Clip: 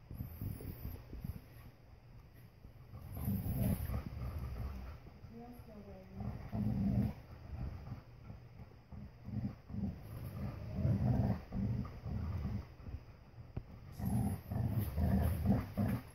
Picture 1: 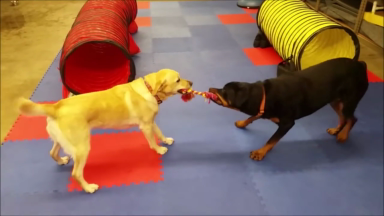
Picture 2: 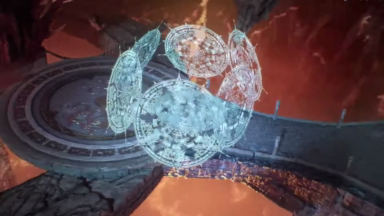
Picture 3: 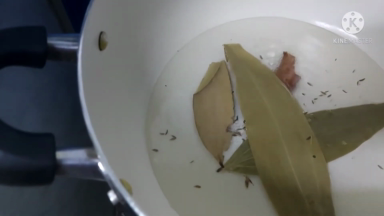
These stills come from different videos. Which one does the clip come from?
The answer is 1